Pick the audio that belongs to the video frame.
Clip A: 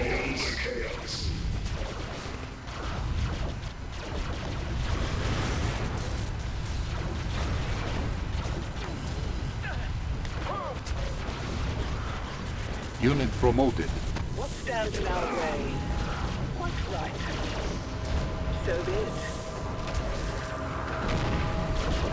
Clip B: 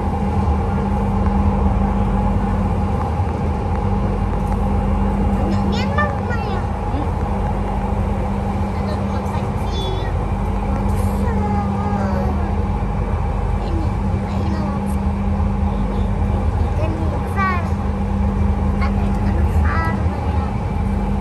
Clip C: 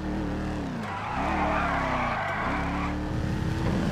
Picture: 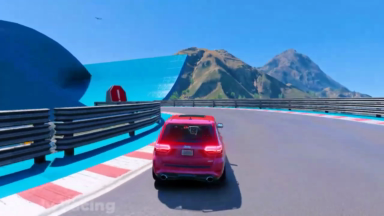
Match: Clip C